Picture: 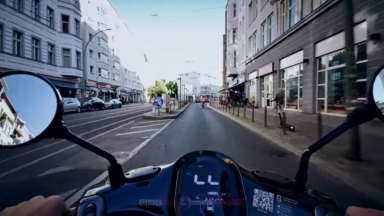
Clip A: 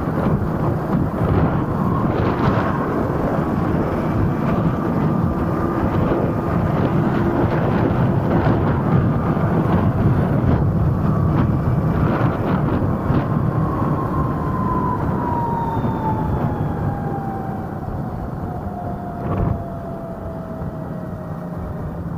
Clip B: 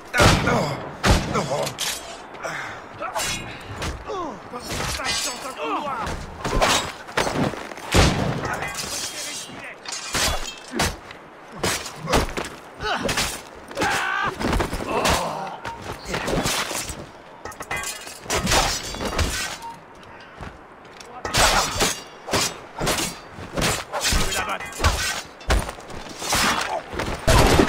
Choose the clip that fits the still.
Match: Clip A